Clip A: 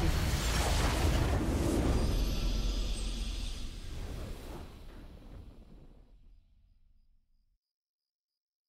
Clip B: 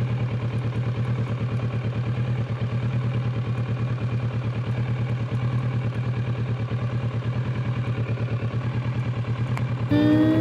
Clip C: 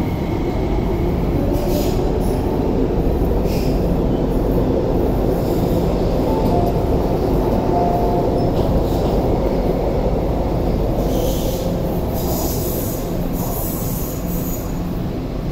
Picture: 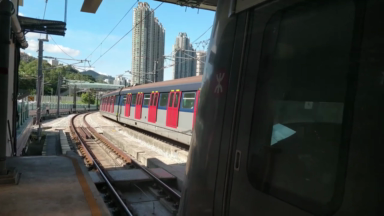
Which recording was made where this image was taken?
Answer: C